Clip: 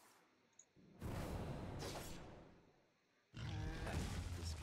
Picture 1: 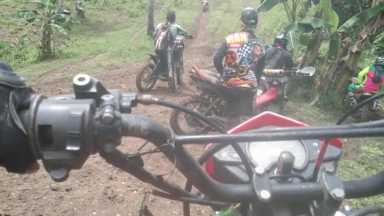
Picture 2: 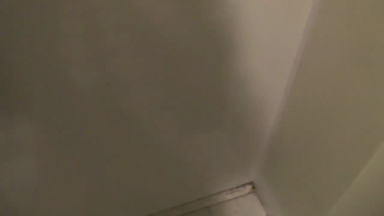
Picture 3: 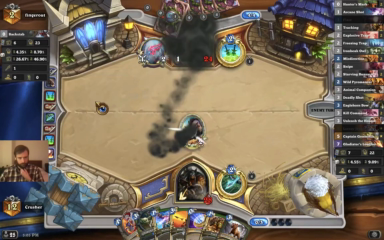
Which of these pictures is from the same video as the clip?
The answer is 3